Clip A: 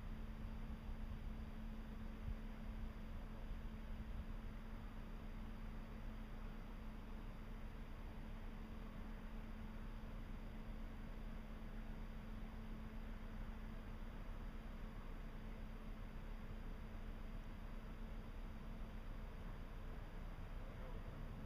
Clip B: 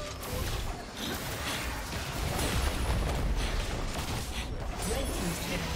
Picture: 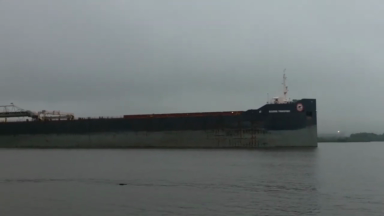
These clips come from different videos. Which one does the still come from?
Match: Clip A